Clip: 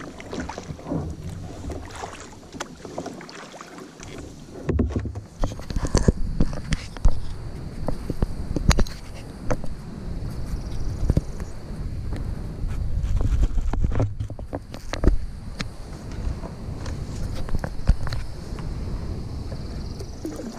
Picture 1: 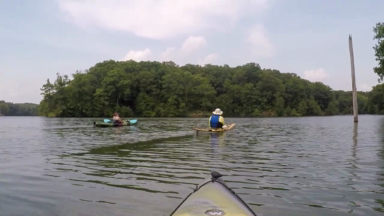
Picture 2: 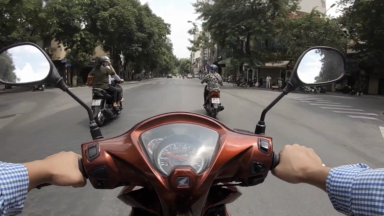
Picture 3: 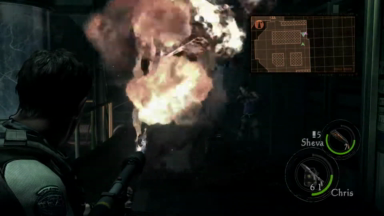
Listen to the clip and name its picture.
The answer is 1